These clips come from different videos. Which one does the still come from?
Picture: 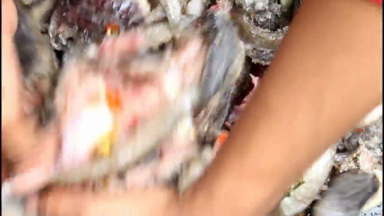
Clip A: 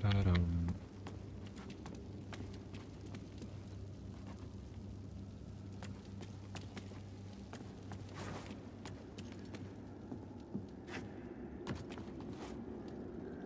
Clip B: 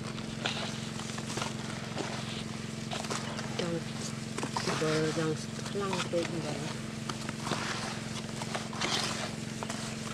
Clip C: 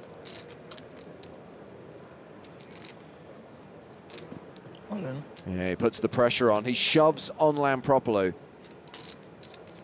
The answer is B